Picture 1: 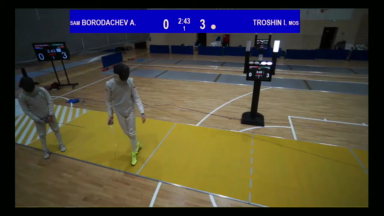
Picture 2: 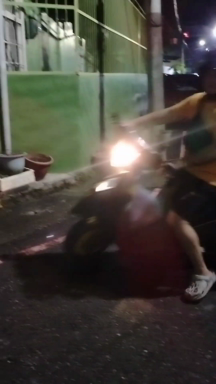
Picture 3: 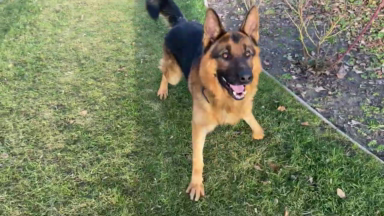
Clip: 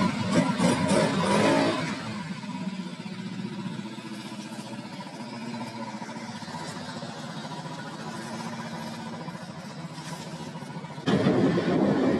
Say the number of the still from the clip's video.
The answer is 2